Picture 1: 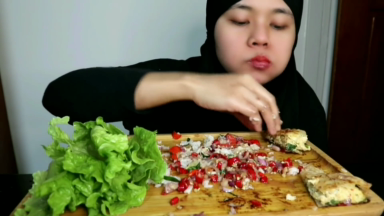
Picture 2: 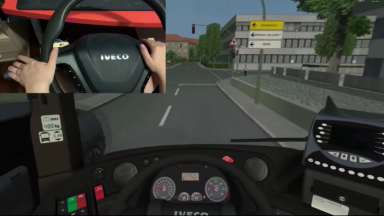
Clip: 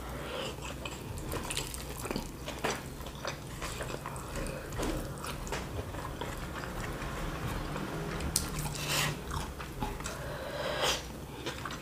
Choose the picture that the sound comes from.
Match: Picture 1